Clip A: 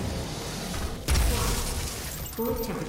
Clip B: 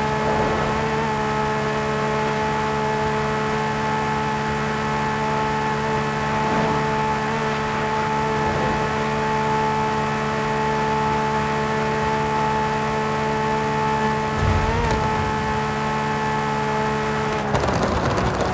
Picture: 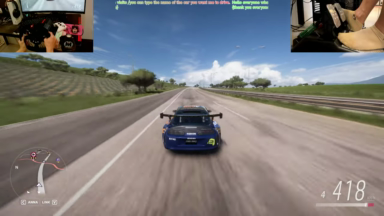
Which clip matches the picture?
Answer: B